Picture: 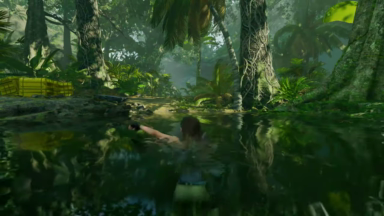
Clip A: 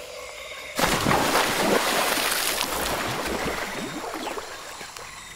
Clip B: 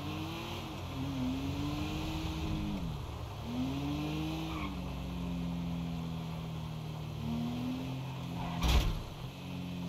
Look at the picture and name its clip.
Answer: A